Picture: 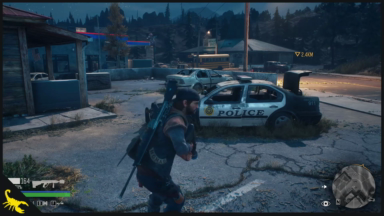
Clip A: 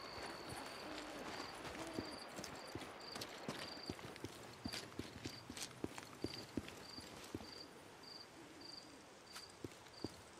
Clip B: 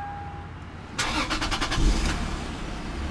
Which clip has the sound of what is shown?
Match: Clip A